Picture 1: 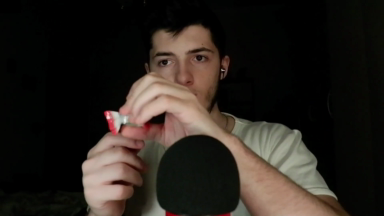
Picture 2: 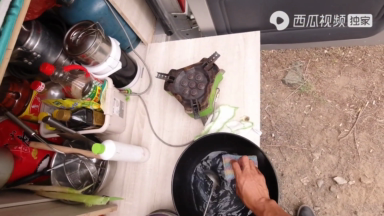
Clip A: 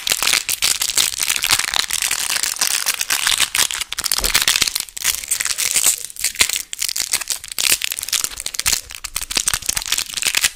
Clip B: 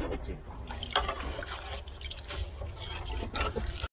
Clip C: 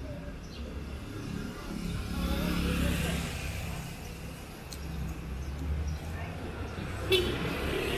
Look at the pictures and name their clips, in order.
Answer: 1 A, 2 B